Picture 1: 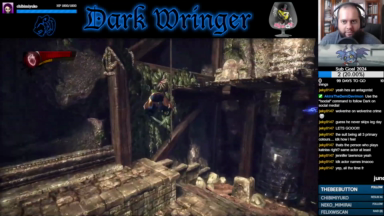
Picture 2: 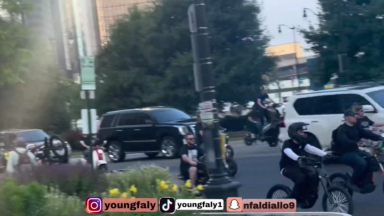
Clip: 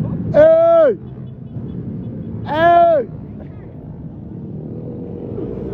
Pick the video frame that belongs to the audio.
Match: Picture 2